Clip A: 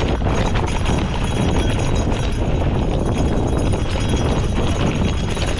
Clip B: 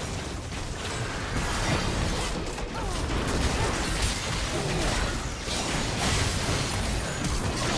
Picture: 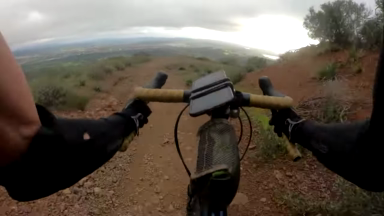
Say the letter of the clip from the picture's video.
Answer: A